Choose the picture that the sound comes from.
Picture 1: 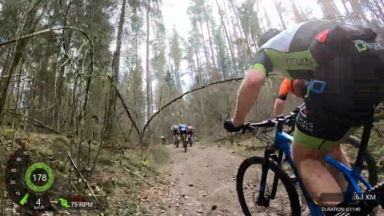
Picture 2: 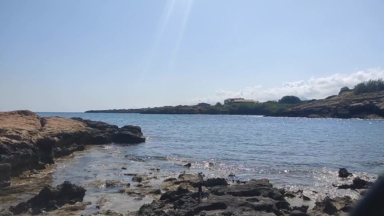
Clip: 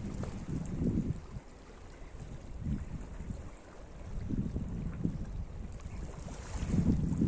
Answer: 2